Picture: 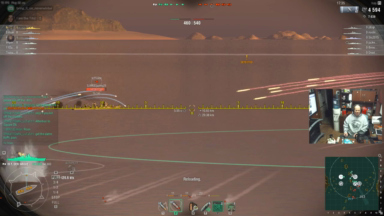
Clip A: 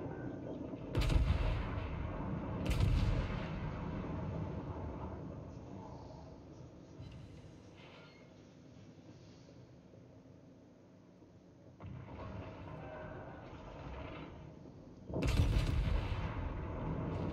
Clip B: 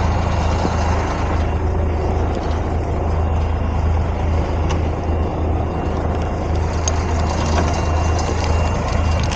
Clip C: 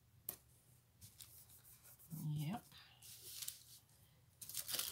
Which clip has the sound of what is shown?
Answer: A